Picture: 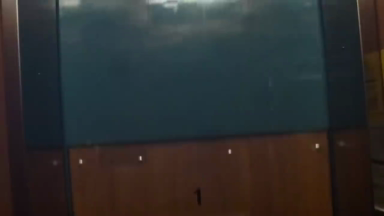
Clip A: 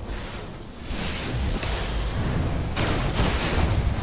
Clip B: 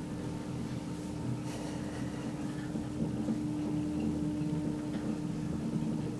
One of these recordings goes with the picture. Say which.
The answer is B